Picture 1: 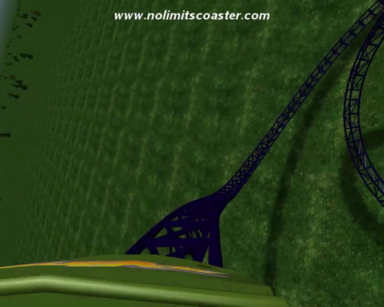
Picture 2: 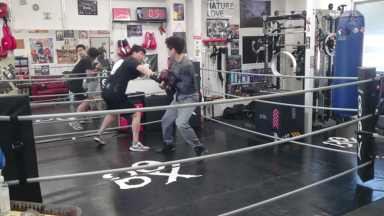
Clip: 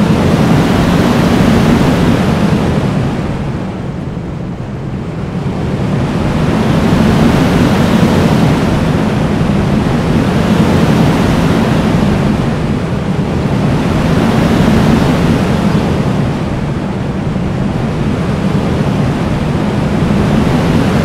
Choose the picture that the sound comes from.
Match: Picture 1